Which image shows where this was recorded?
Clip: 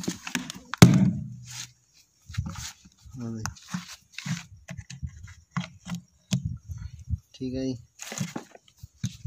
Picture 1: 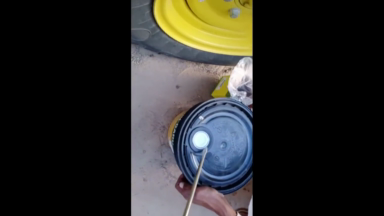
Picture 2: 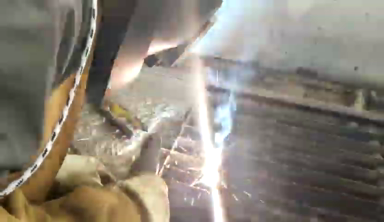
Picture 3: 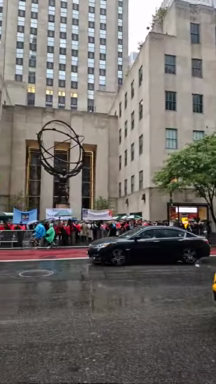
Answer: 1